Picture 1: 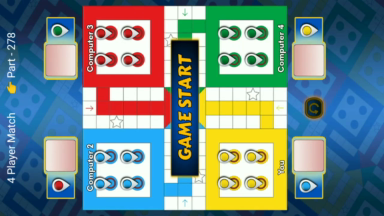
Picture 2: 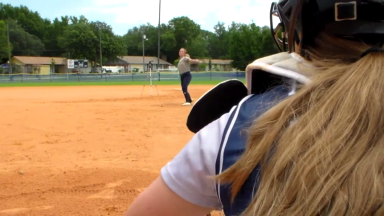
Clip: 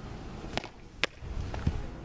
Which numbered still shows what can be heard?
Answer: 2